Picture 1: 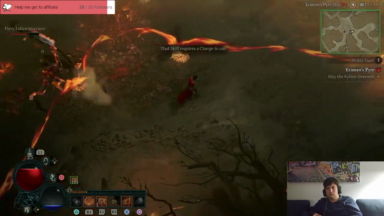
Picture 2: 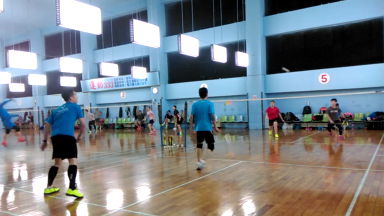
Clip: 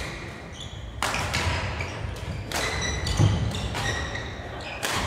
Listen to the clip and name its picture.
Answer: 2